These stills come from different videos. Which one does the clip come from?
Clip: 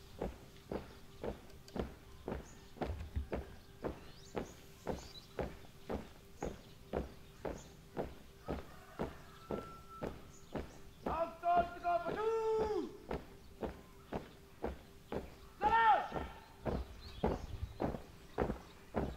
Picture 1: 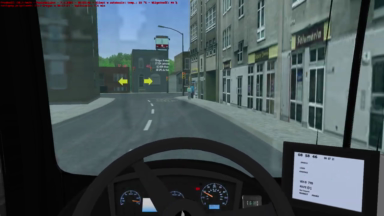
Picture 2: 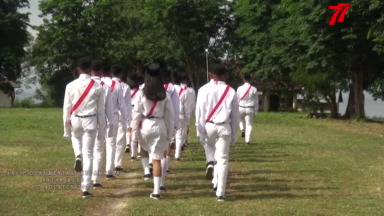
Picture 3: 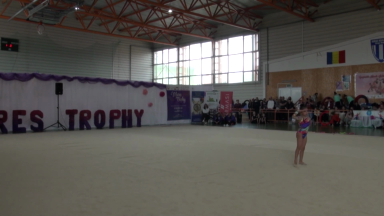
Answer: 2